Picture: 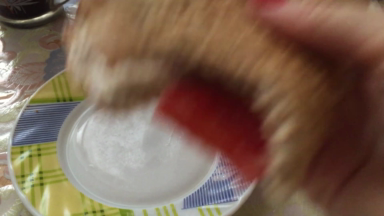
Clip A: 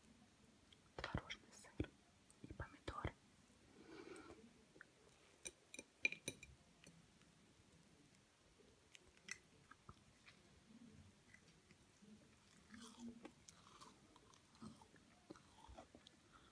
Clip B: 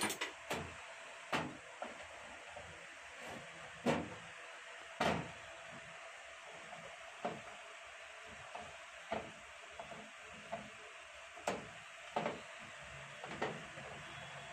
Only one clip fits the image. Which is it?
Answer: A